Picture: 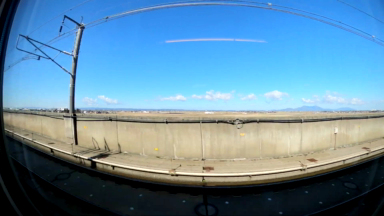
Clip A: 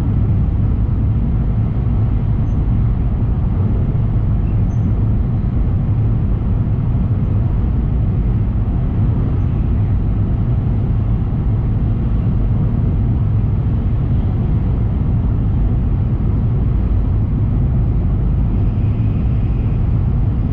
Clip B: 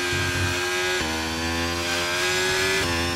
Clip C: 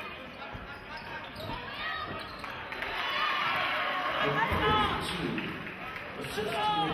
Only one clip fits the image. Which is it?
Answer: A